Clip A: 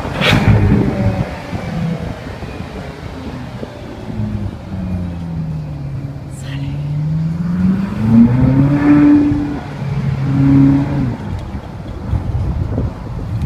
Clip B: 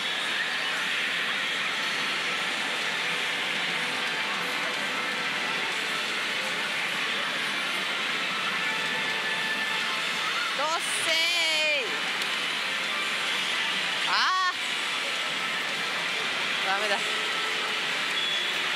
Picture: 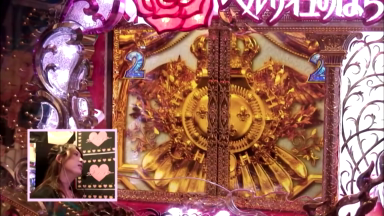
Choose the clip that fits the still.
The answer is B